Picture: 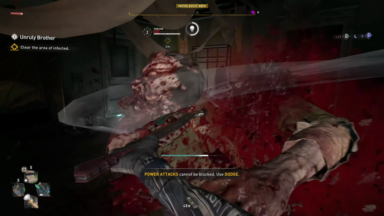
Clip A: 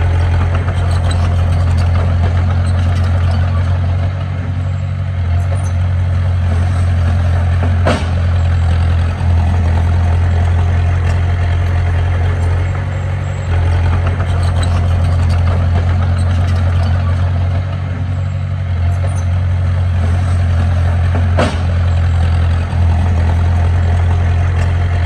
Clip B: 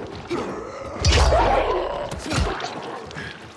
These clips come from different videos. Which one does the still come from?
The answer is B